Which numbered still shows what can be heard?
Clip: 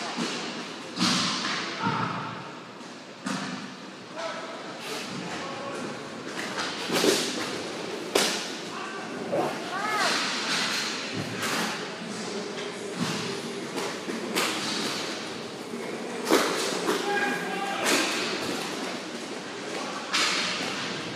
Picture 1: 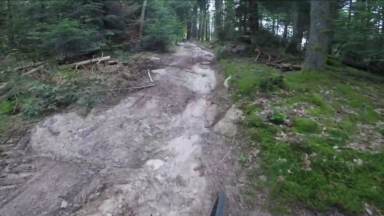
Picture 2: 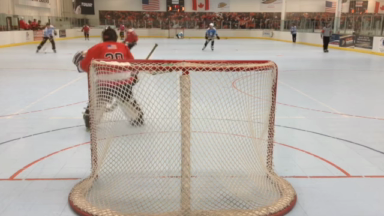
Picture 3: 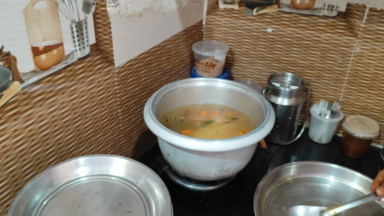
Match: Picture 2